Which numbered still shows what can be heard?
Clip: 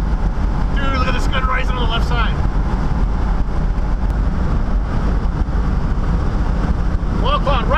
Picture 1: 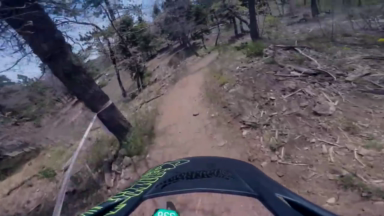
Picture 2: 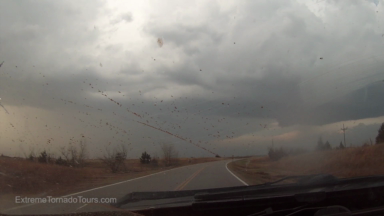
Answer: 2